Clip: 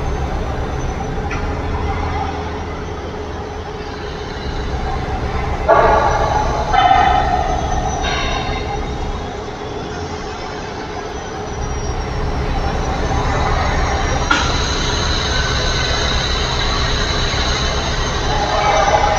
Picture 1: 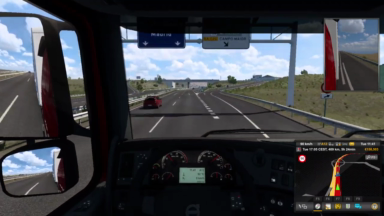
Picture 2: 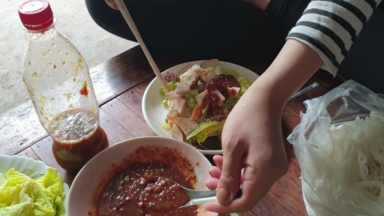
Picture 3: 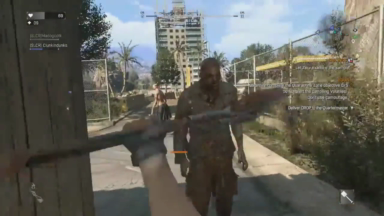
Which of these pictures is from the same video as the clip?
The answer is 1